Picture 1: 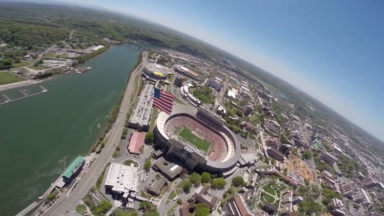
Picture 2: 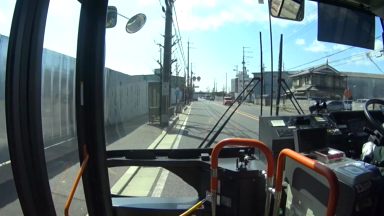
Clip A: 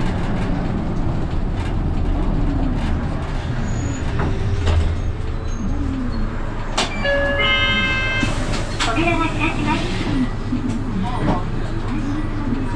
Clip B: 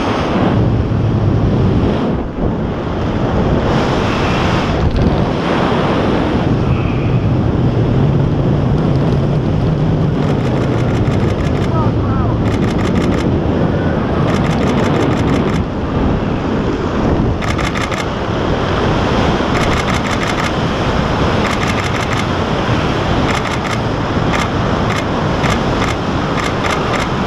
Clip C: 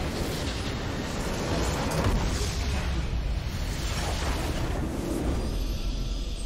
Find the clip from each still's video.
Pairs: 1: B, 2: A